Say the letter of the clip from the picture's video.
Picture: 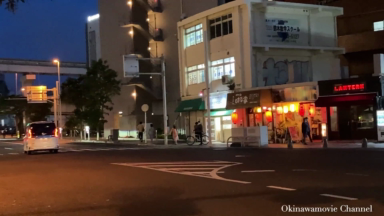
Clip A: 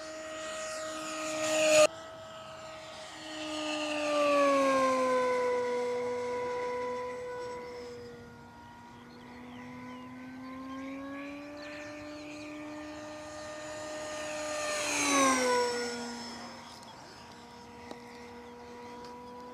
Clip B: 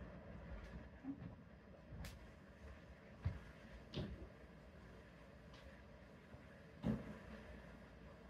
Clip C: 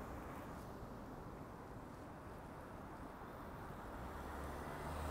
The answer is C